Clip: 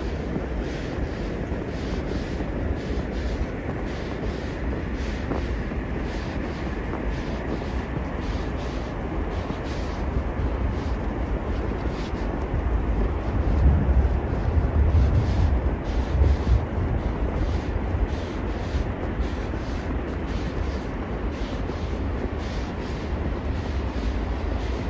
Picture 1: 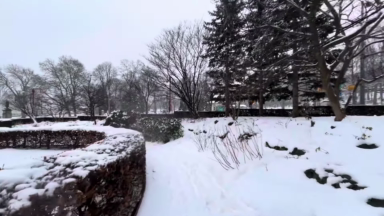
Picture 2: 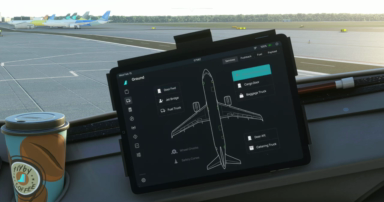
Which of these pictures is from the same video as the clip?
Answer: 1